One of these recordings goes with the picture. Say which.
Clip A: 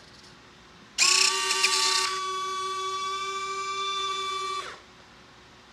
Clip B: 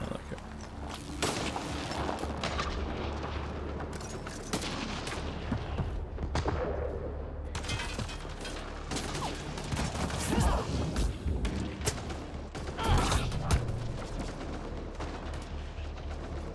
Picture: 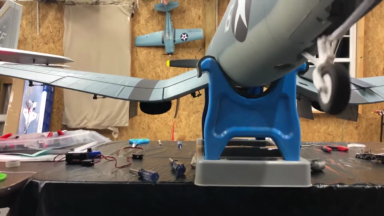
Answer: A